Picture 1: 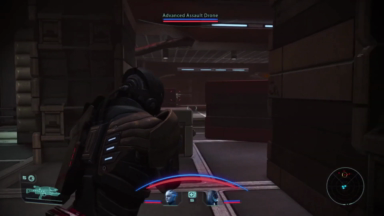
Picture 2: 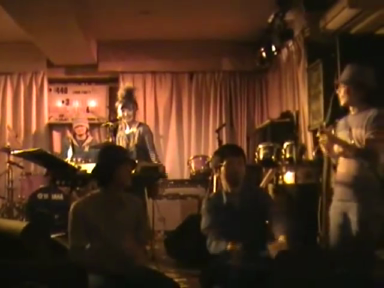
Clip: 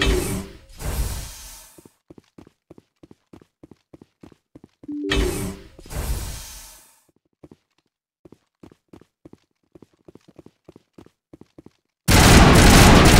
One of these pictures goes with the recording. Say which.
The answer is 1